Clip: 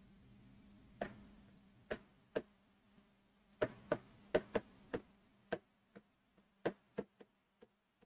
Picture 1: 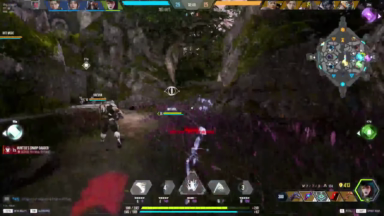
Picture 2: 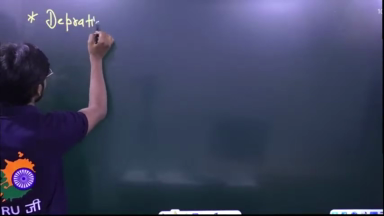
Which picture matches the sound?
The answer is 2